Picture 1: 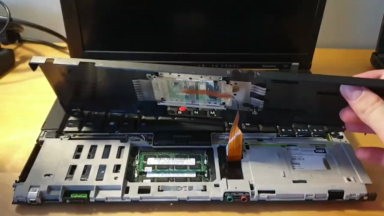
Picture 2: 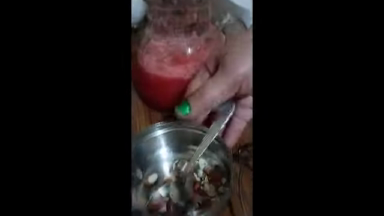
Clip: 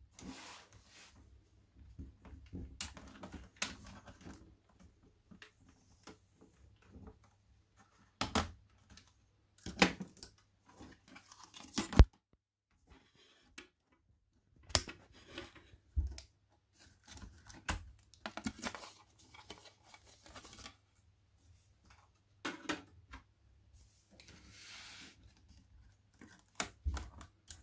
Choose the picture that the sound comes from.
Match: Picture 1